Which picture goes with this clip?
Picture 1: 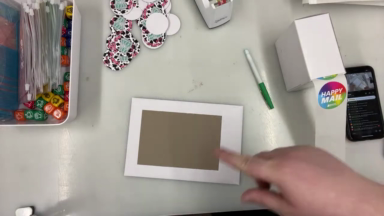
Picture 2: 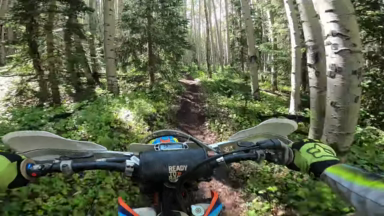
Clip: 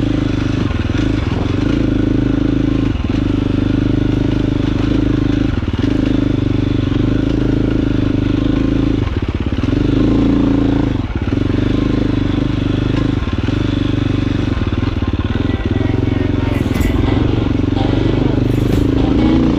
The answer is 2